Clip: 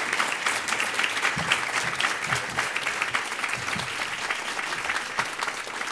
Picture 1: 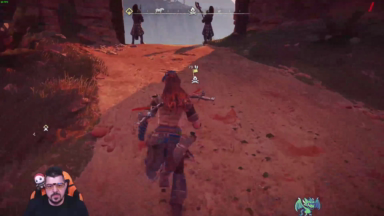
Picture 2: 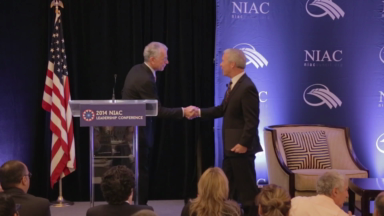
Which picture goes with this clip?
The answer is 2